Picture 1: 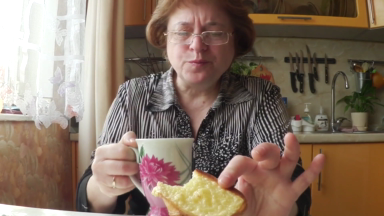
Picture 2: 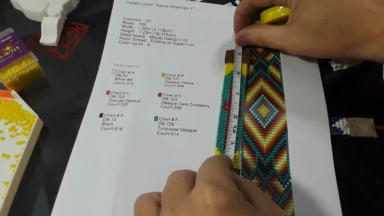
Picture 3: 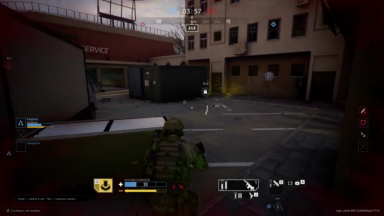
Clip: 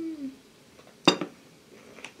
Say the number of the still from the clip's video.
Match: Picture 1